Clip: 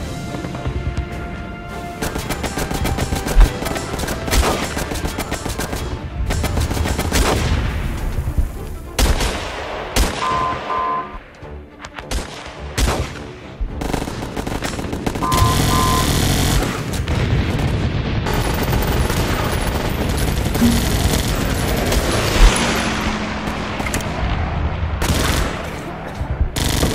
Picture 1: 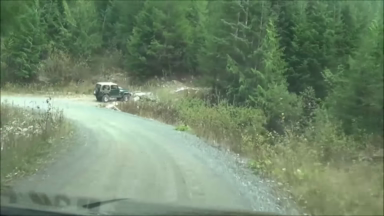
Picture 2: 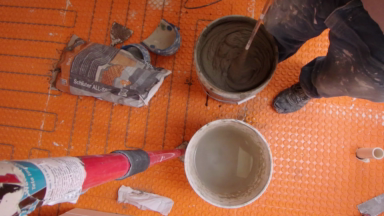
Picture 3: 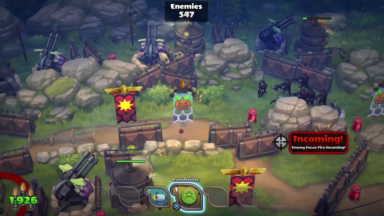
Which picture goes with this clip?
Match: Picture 3